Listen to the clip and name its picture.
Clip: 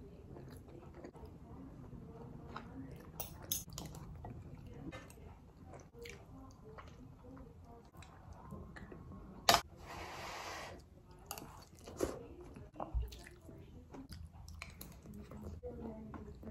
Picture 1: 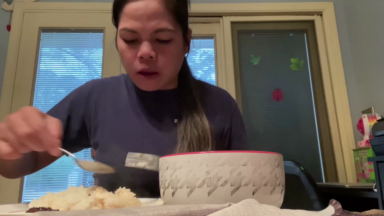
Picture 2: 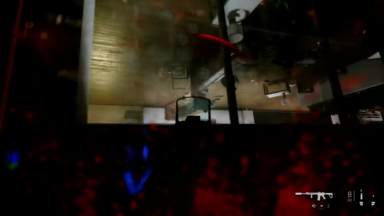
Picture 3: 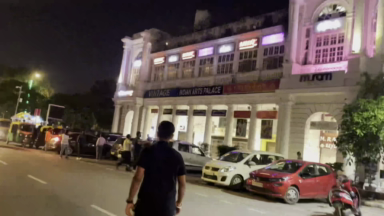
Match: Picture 1